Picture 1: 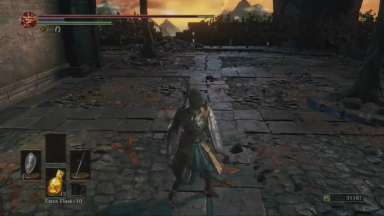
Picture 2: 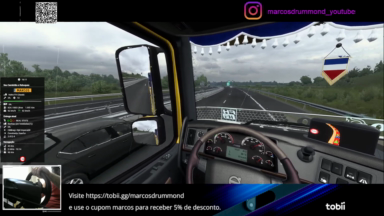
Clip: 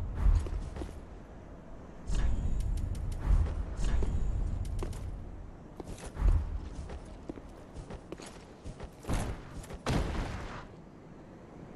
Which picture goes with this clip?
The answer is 1